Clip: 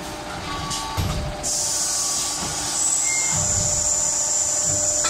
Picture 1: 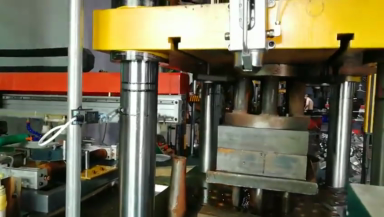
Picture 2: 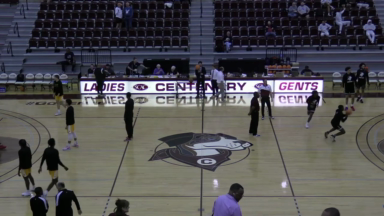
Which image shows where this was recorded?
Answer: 1